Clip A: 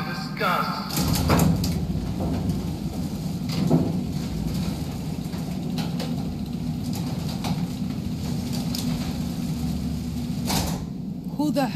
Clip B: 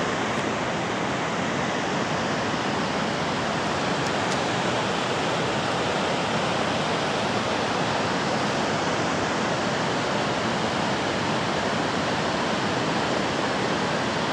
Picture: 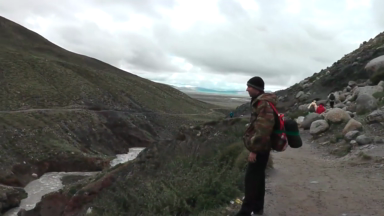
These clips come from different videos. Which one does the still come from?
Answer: B